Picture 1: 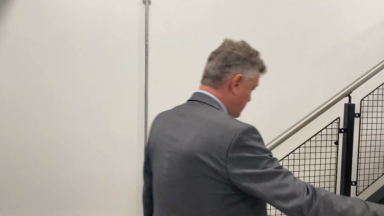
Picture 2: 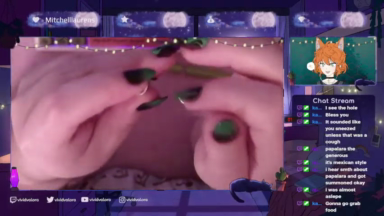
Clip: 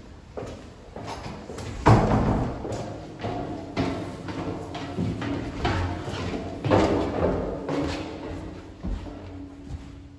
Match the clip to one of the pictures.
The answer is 1